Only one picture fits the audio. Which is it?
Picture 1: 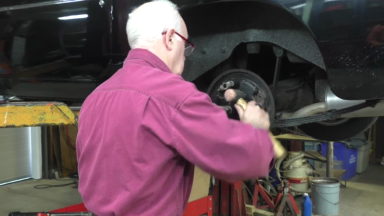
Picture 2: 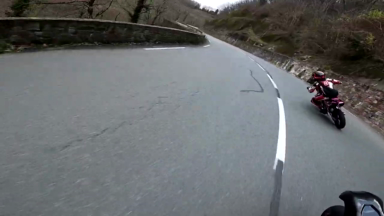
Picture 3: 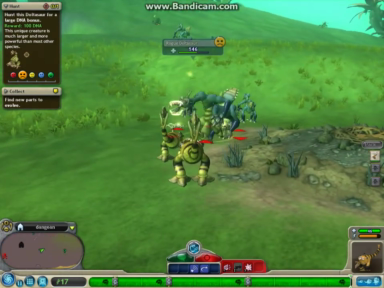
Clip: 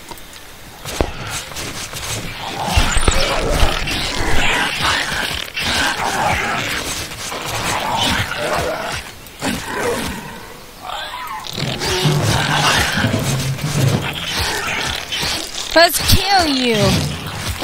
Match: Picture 3